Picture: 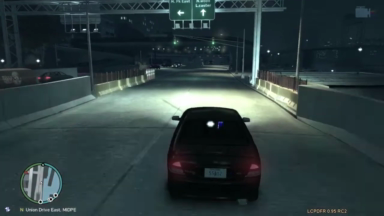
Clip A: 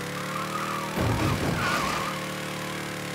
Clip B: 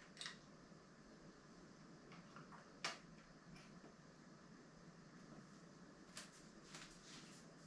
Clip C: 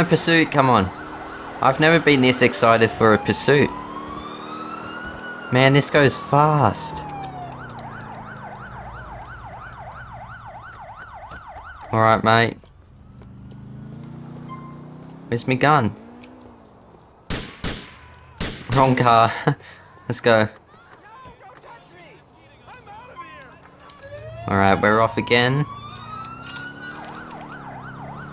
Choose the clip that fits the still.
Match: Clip C